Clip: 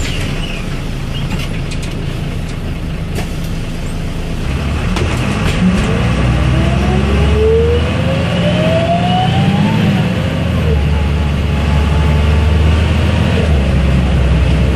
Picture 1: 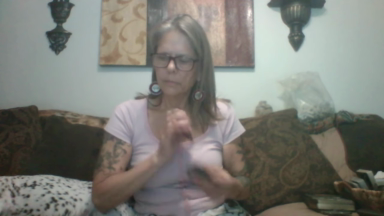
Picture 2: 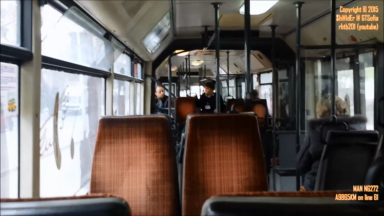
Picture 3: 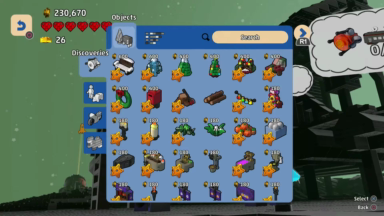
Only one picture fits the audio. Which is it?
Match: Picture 2